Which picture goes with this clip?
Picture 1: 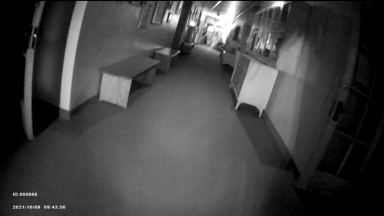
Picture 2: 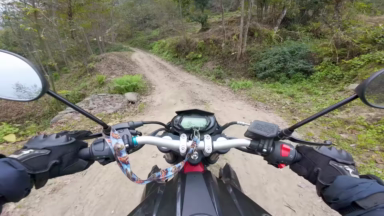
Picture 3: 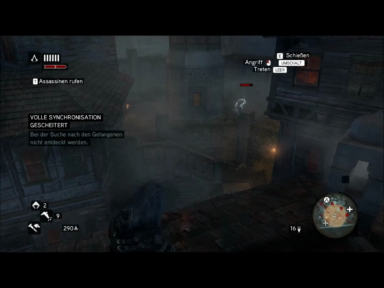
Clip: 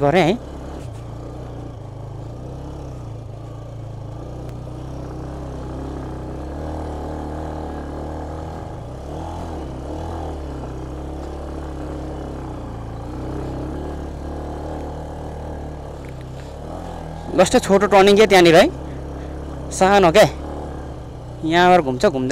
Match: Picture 2